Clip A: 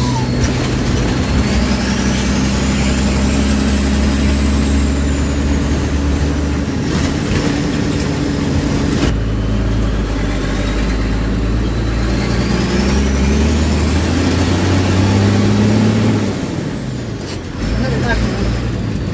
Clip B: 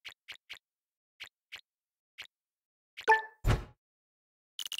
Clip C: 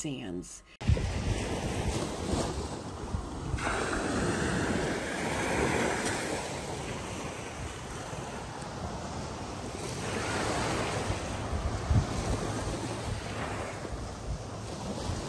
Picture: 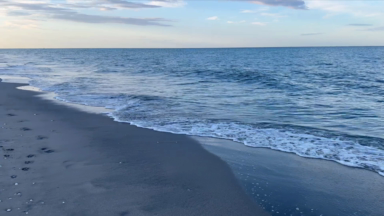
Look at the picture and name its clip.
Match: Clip C